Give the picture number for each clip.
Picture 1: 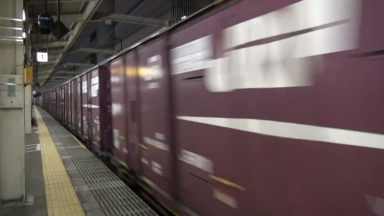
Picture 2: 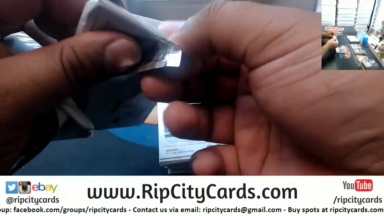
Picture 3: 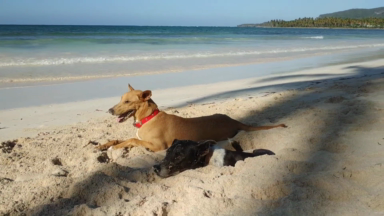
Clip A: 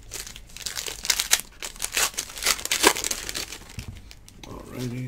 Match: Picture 2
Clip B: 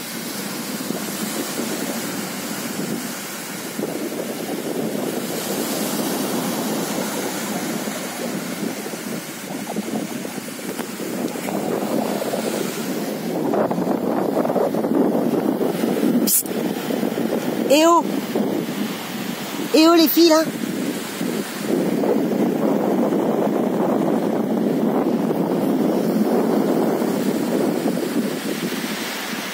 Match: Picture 3